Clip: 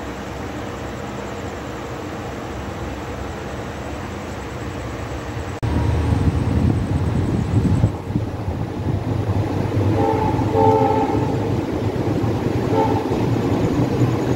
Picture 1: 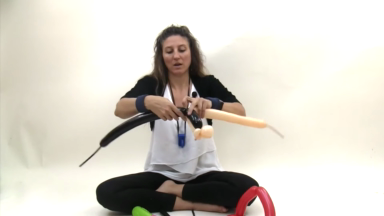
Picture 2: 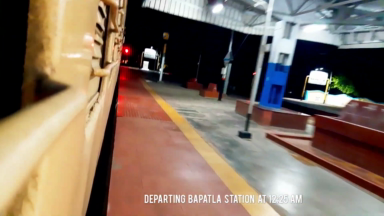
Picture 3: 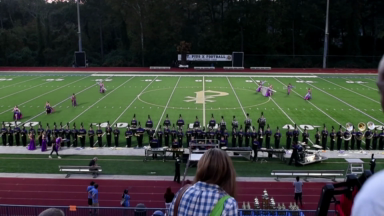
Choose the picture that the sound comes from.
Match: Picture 2